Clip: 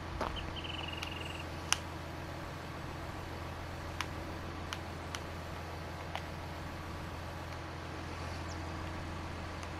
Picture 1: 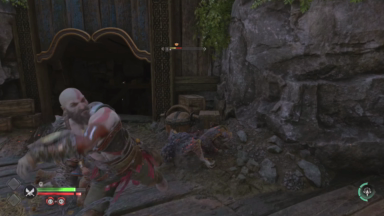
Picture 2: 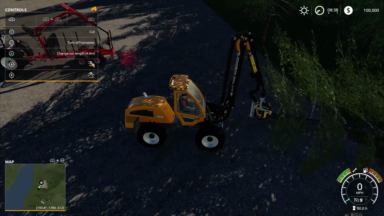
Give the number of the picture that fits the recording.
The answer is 2